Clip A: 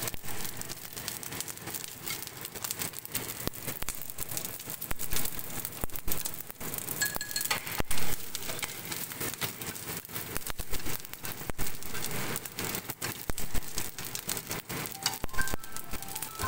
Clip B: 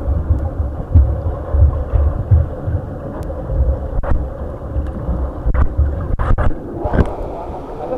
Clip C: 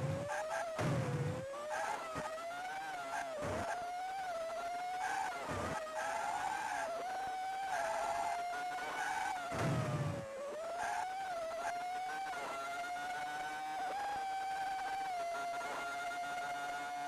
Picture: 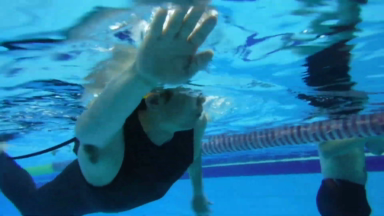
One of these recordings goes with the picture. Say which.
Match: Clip B